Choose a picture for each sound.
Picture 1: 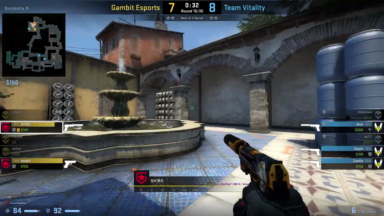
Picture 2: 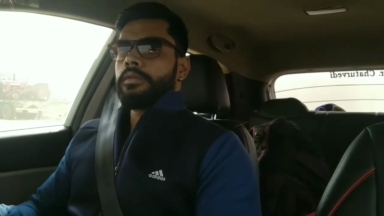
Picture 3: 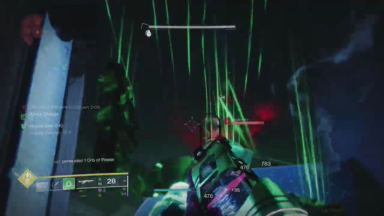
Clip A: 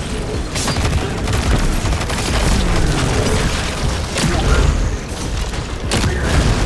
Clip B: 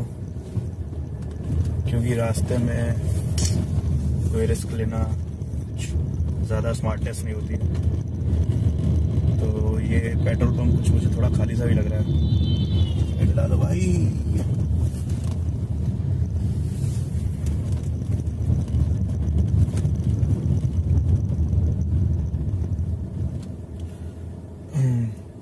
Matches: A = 3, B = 2